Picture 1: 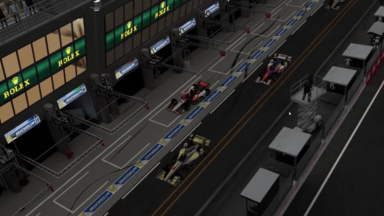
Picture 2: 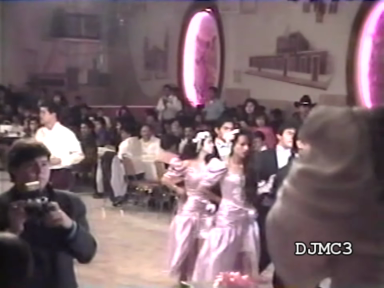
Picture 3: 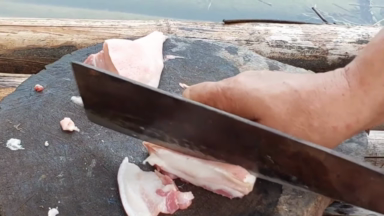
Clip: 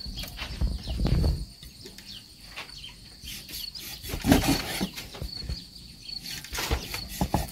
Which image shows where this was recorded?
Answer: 3